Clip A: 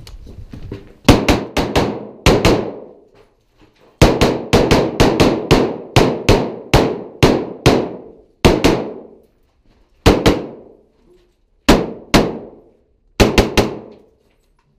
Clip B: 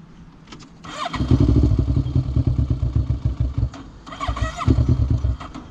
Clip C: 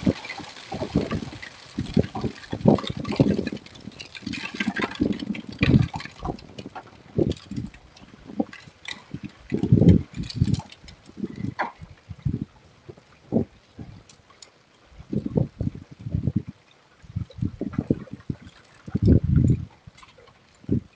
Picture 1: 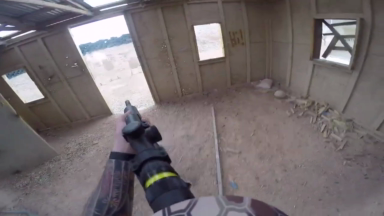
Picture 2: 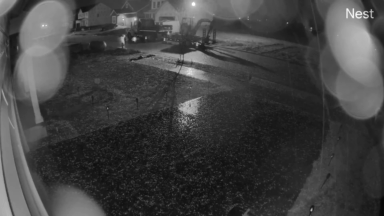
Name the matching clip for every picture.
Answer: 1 A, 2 C